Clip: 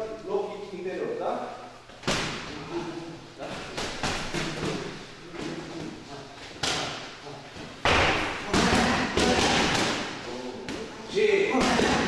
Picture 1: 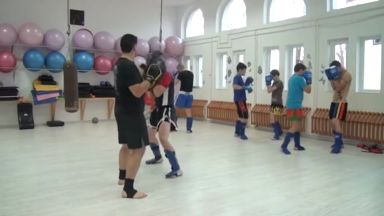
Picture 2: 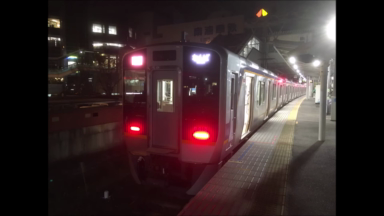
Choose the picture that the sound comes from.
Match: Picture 1